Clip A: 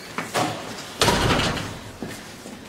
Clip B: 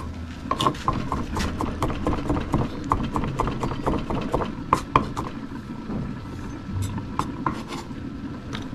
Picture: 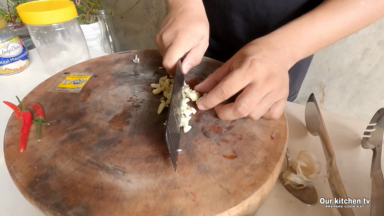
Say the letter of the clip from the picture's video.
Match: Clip B